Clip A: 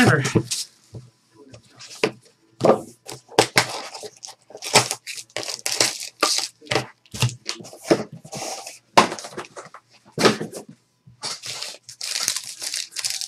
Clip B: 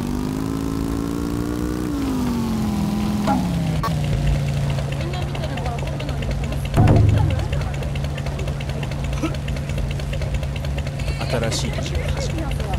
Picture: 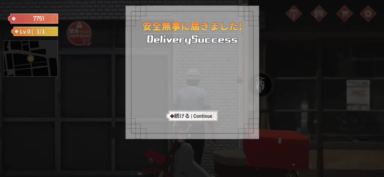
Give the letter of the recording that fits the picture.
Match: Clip B